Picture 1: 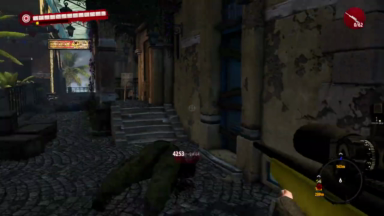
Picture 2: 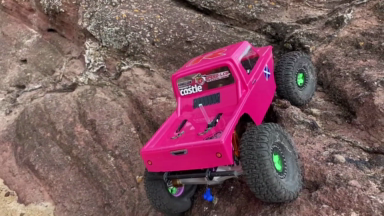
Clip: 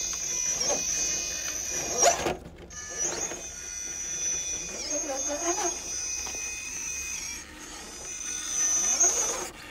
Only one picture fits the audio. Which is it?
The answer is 2